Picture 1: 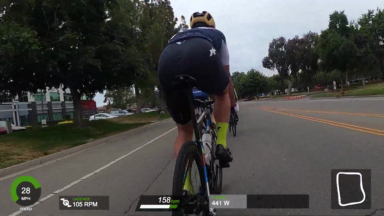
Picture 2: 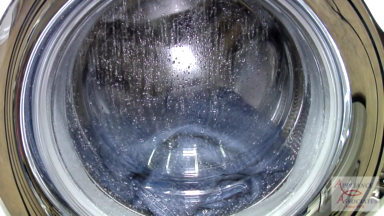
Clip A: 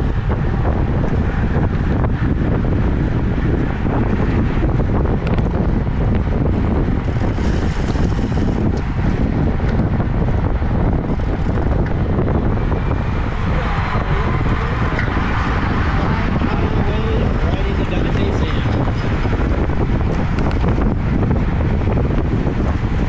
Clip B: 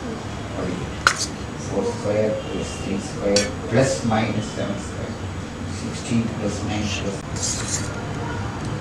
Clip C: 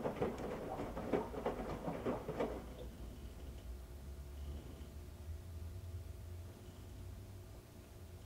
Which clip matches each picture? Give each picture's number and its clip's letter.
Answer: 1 A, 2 C